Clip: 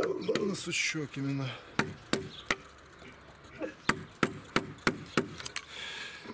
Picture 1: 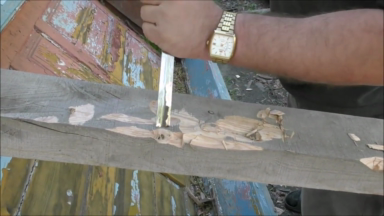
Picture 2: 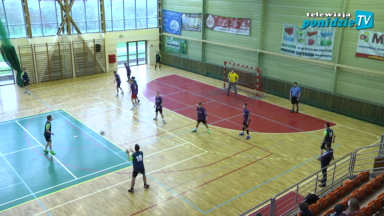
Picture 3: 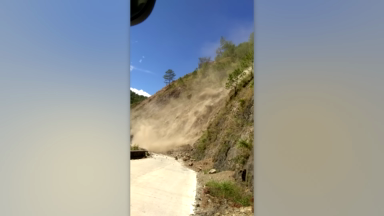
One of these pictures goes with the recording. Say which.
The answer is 1